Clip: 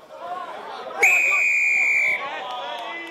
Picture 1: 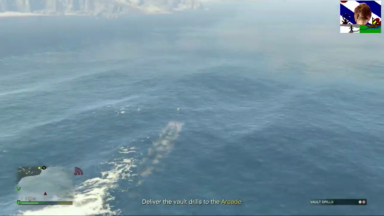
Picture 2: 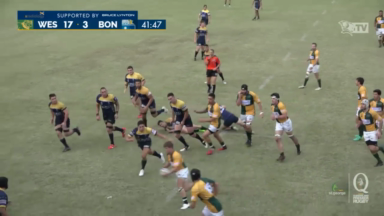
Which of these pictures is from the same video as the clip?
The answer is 2